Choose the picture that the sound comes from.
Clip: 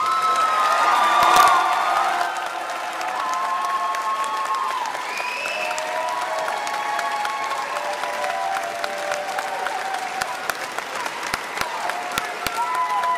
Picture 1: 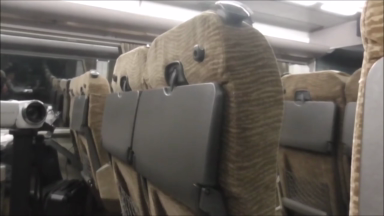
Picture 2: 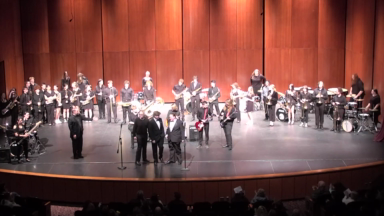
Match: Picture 2